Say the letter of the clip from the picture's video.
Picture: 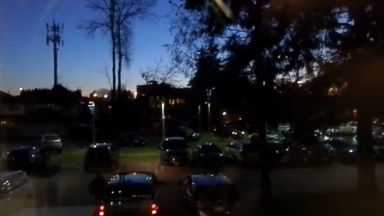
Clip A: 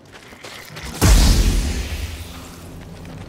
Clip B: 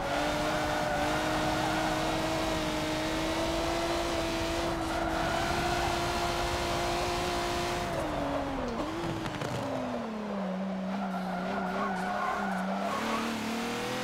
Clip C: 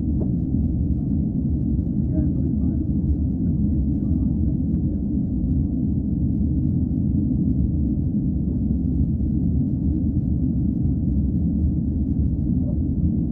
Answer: C